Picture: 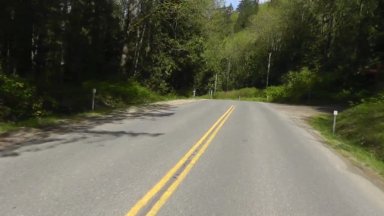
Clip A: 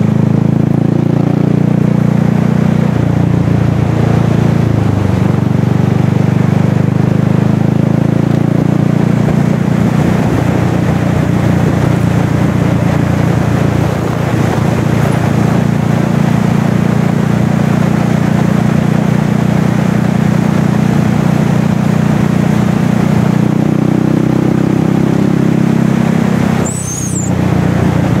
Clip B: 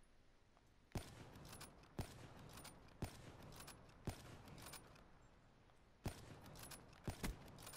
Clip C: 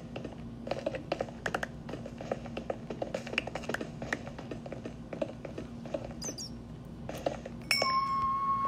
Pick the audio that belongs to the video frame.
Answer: A